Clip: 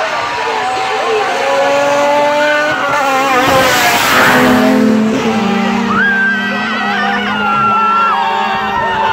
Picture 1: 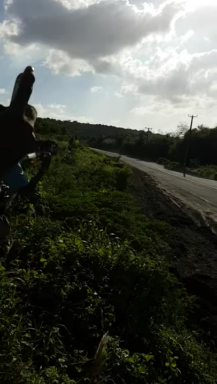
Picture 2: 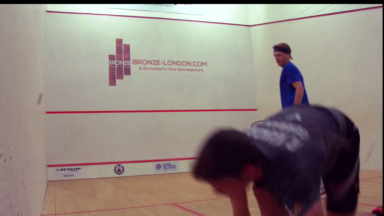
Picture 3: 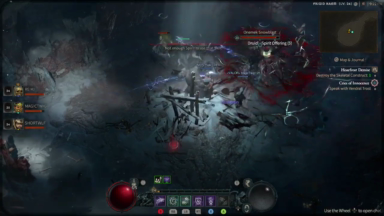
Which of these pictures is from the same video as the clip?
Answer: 1